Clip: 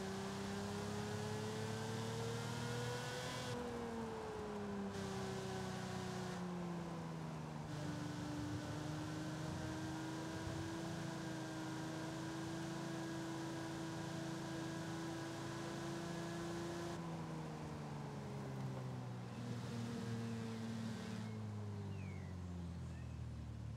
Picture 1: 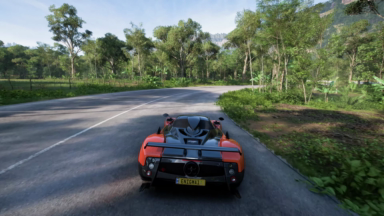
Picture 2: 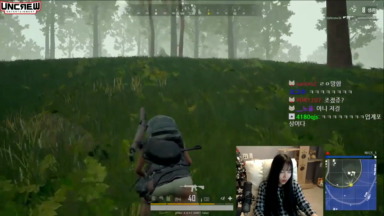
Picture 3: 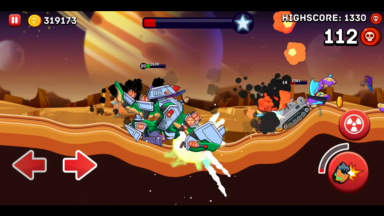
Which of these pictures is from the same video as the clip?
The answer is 1